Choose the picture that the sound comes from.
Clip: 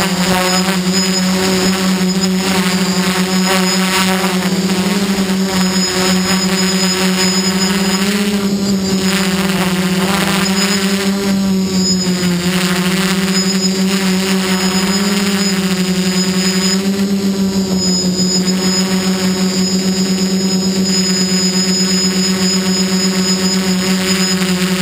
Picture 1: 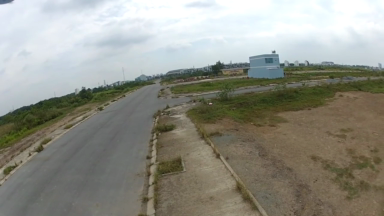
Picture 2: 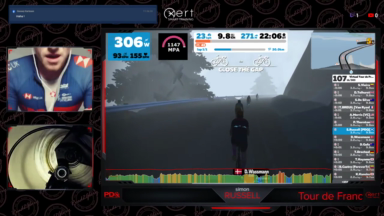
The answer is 1